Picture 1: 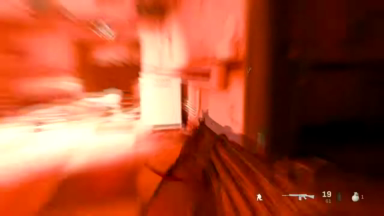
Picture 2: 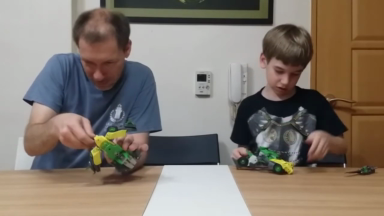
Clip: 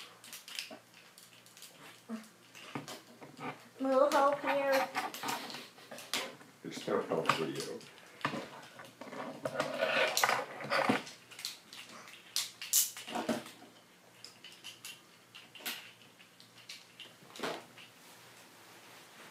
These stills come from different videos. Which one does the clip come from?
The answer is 2